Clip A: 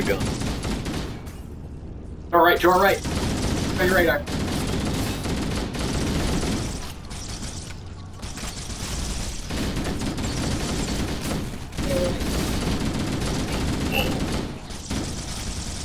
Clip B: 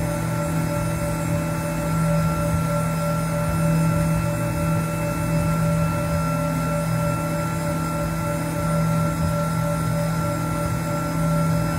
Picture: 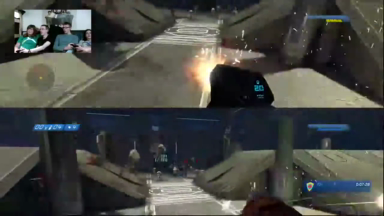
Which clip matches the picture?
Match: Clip A